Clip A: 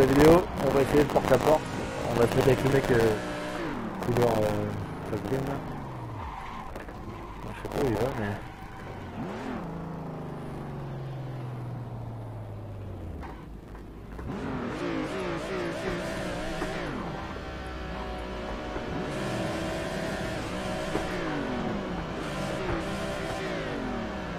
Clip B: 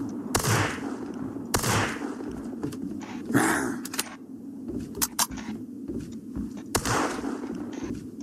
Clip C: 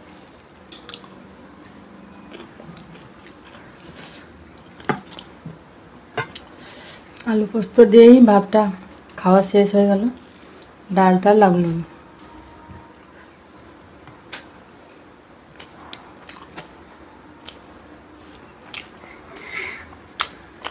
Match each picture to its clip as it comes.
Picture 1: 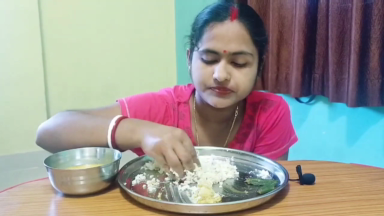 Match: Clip C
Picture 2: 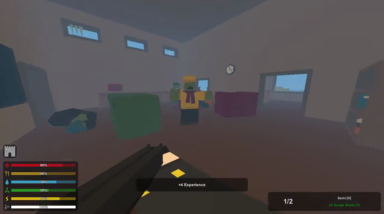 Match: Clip B